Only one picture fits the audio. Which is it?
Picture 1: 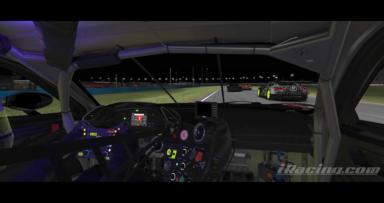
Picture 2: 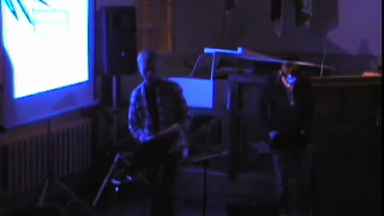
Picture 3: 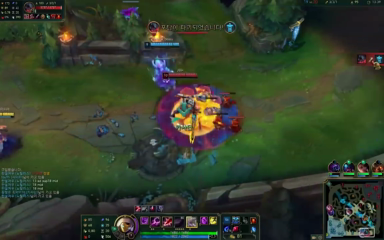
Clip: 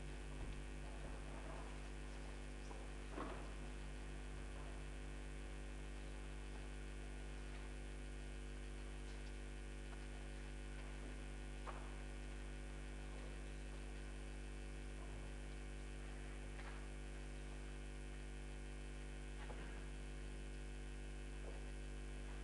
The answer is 2